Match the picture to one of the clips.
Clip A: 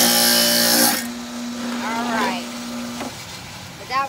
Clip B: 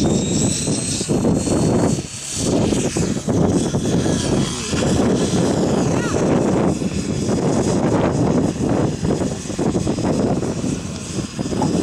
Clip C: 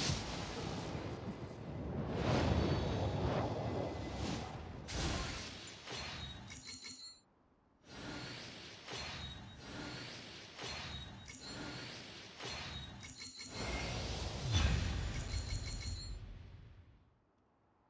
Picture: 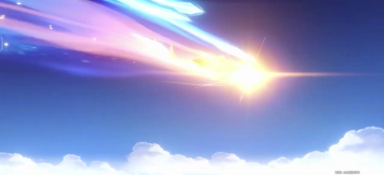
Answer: C